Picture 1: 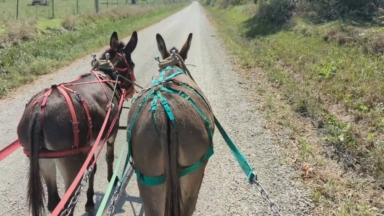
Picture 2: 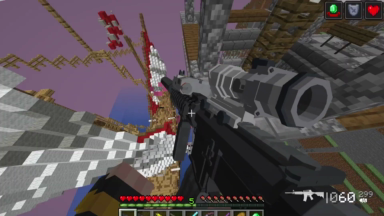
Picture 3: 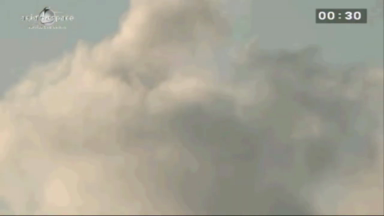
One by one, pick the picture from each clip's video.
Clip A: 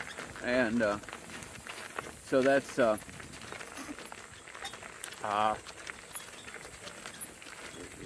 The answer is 1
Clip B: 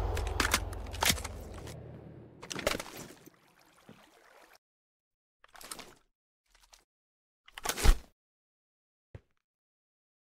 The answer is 2